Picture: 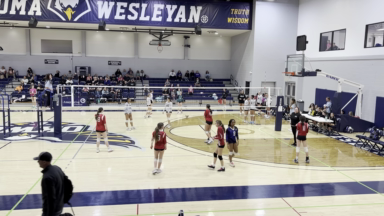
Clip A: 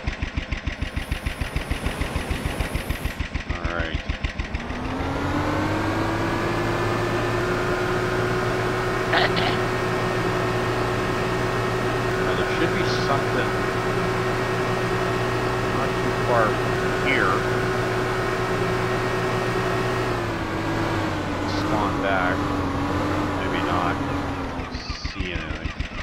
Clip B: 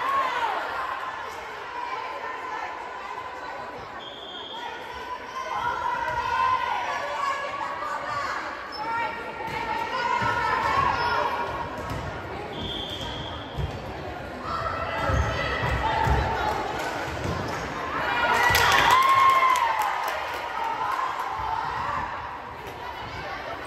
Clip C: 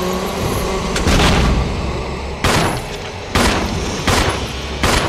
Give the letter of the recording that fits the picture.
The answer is B